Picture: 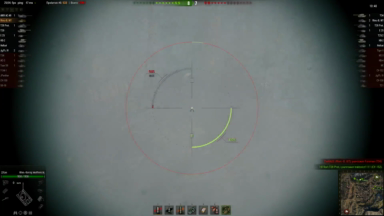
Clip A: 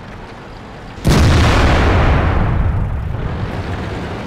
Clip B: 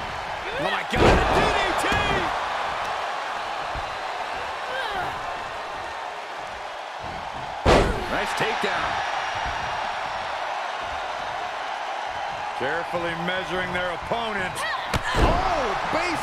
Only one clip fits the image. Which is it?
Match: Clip A